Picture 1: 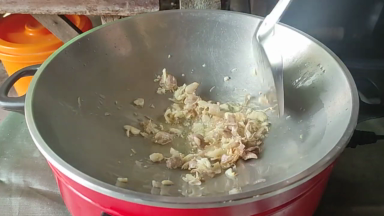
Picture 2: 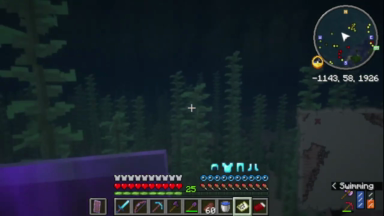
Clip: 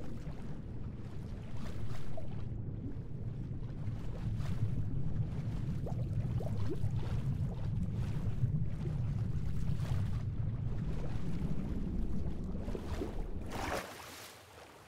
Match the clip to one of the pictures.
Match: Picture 2